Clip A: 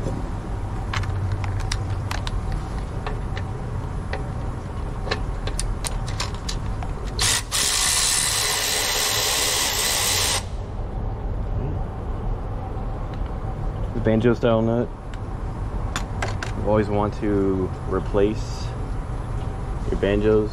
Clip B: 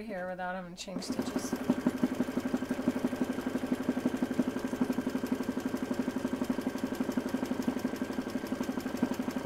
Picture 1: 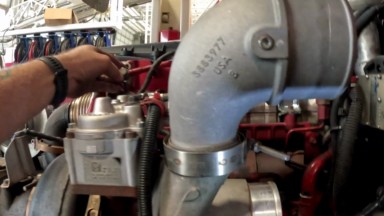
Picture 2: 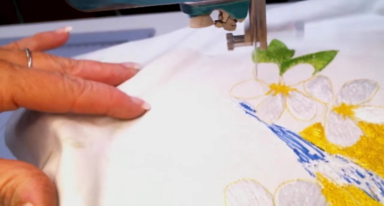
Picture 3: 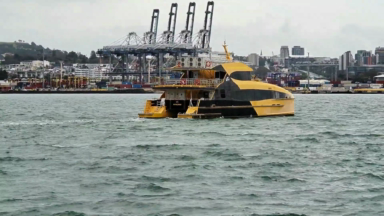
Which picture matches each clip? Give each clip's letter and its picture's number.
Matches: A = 1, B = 2